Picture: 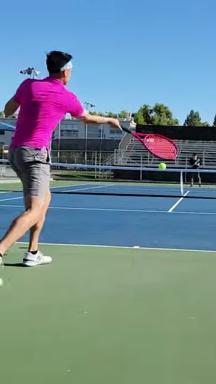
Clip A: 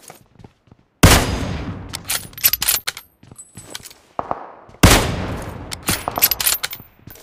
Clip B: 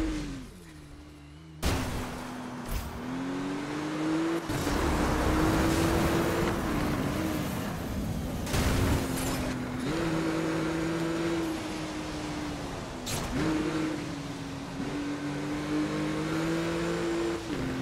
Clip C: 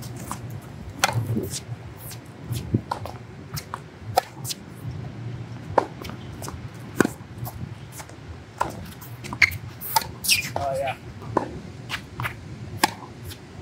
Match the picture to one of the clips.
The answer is C